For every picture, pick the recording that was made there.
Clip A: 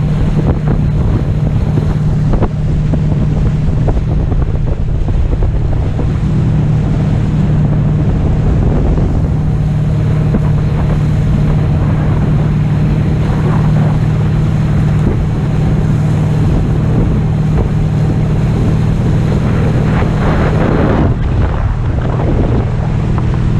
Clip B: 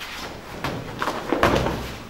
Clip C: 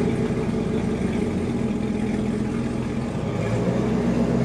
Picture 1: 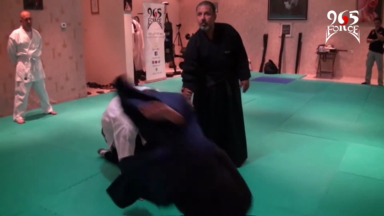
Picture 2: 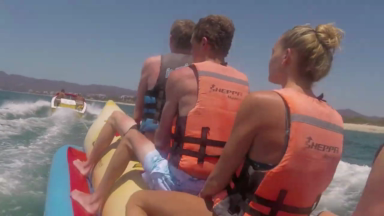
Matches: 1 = B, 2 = A